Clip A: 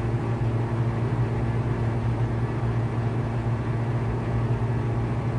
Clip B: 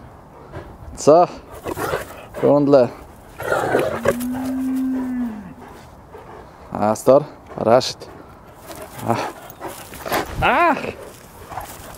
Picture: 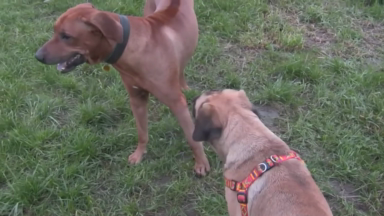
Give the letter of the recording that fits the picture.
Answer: B